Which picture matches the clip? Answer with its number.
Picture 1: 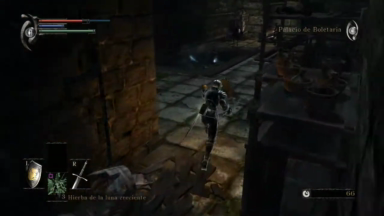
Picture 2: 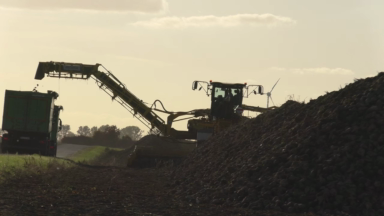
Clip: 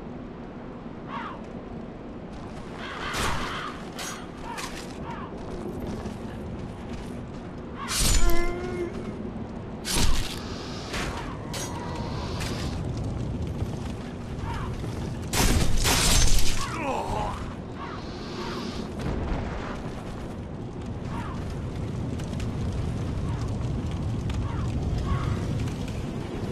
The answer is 1